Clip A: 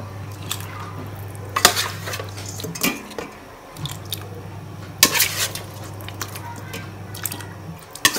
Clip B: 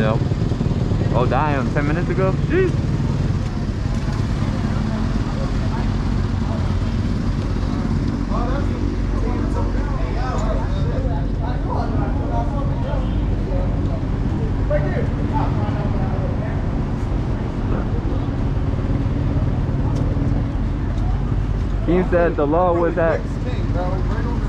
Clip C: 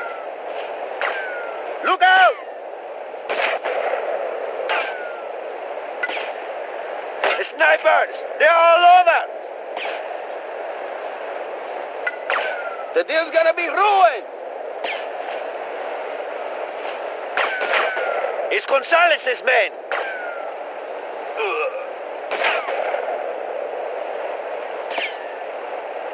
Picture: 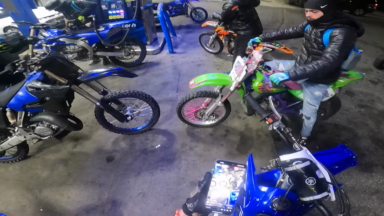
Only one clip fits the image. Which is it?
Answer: B